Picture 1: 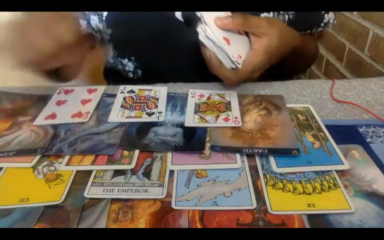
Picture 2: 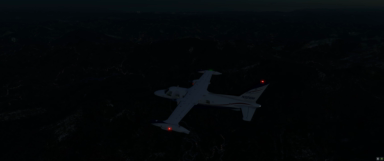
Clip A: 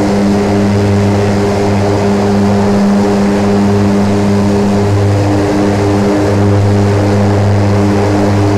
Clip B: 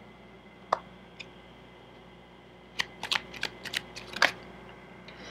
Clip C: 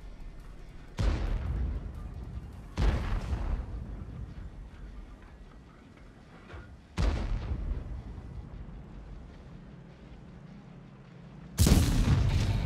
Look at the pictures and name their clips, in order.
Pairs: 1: B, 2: A